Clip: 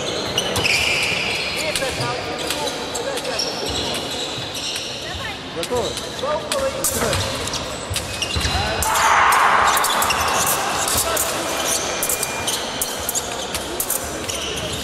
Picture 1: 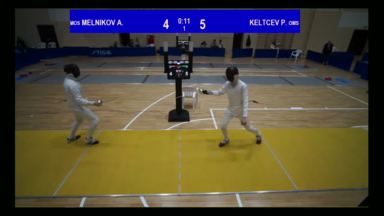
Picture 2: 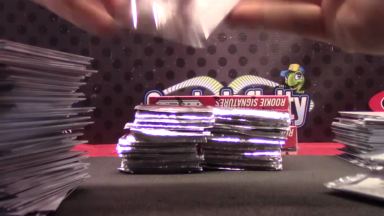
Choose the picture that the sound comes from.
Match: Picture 1